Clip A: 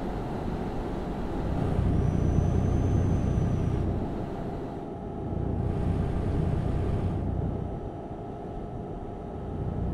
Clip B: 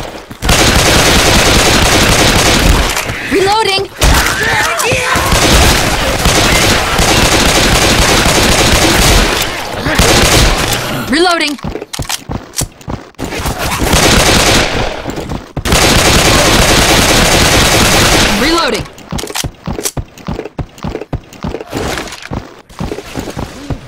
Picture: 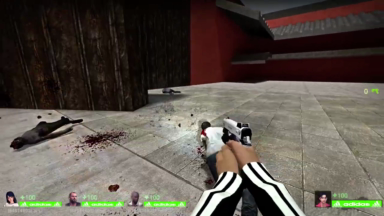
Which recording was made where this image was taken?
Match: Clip B